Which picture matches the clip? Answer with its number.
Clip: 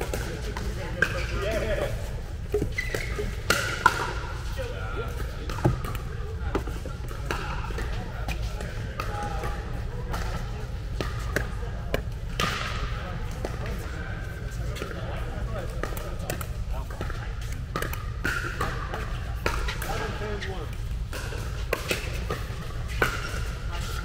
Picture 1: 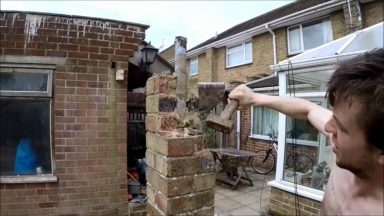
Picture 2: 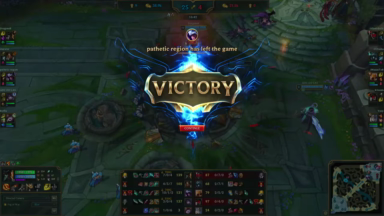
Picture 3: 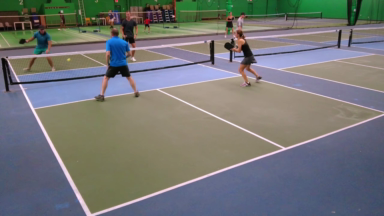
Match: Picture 3